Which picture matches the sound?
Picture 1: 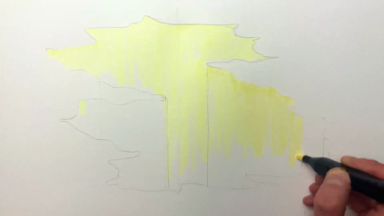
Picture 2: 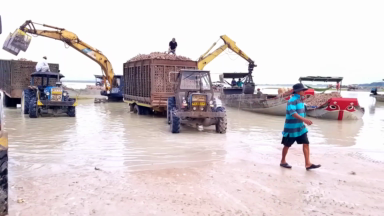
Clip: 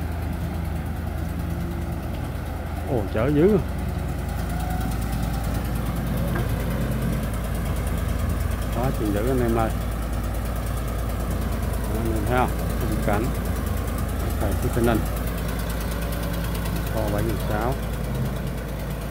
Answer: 2